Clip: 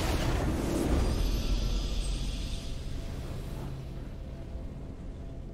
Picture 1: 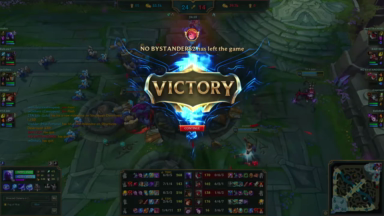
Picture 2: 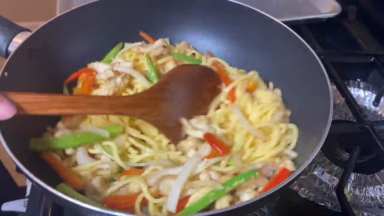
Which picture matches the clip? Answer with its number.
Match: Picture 1